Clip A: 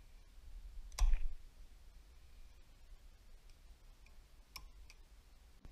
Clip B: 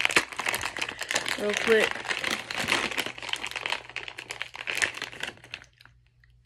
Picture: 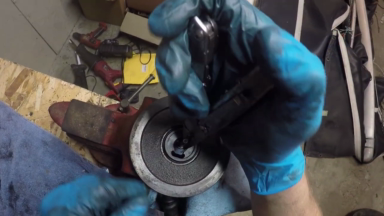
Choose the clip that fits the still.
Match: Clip A